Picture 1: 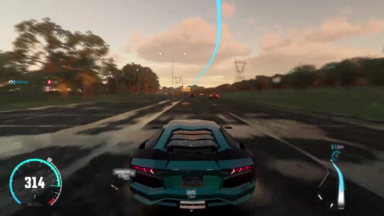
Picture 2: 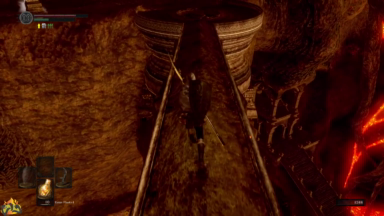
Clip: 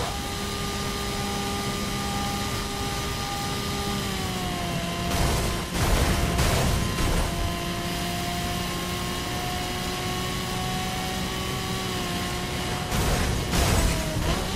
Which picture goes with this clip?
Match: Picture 1